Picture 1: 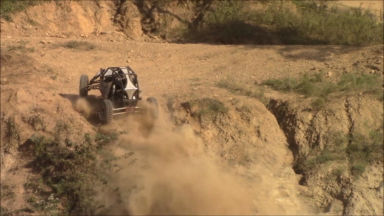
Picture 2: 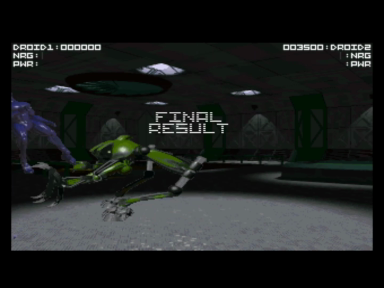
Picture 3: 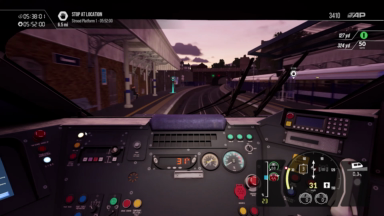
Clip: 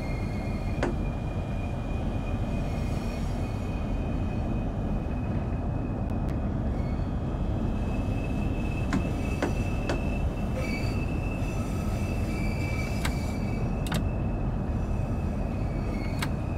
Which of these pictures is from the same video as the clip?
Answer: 3